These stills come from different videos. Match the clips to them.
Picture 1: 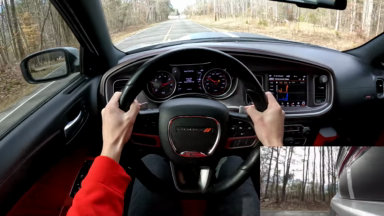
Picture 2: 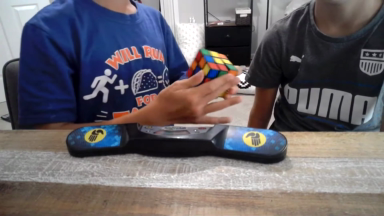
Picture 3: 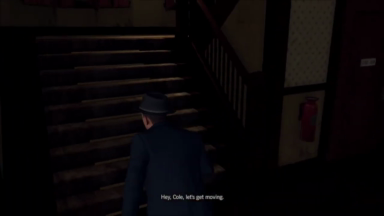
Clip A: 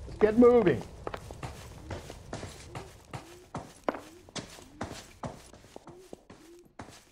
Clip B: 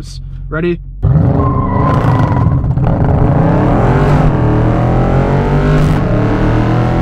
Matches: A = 3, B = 1